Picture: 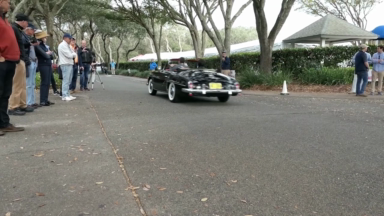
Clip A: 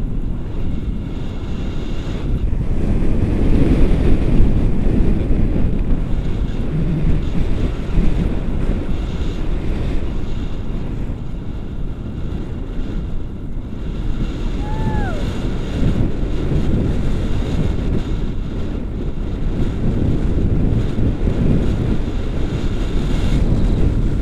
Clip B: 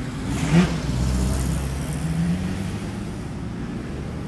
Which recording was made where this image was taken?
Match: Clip B